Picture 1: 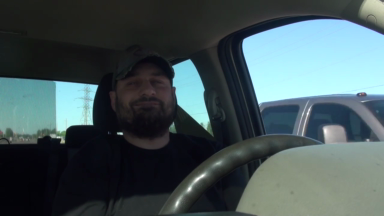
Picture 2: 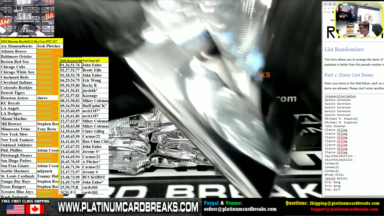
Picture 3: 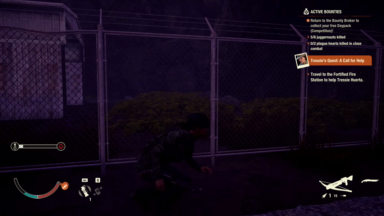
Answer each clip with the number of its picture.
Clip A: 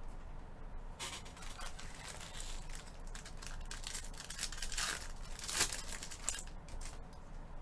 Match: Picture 2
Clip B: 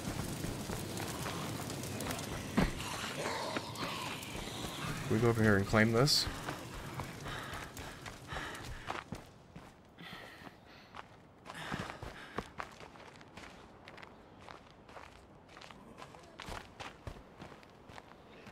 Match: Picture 3